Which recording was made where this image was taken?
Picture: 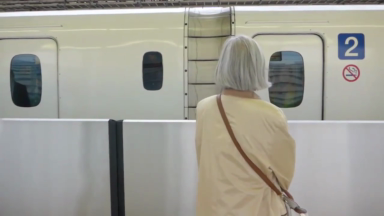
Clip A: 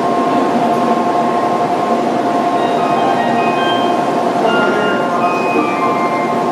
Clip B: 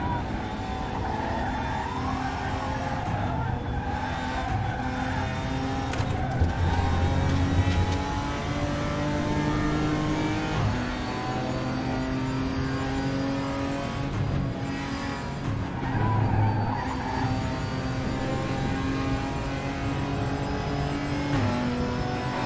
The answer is A